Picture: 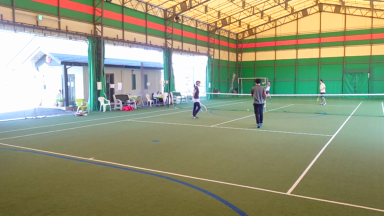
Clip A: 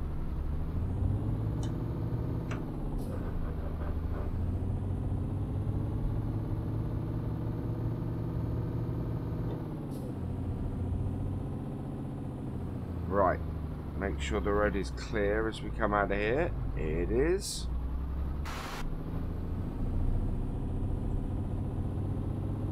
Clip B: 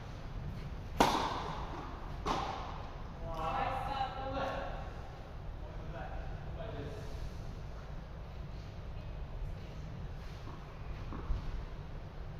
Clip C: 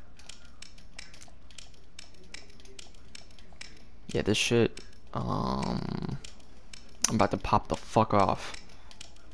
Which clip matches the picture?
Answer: B